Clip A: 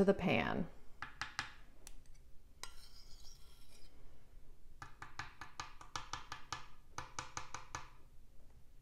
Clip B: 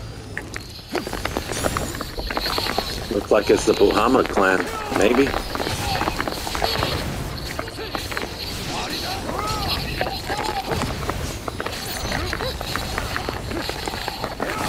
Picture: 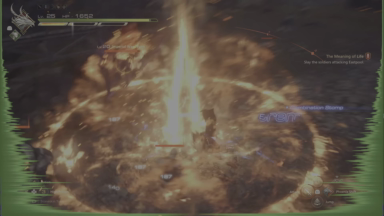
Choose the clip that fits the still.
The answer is B